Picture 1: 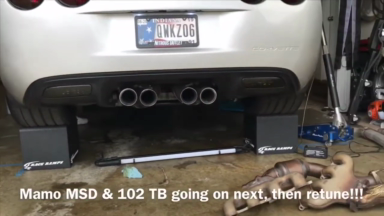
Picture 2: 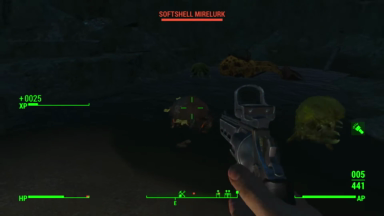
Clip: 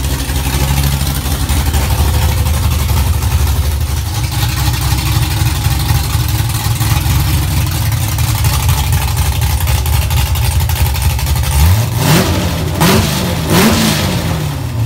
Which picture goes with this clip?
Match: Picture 1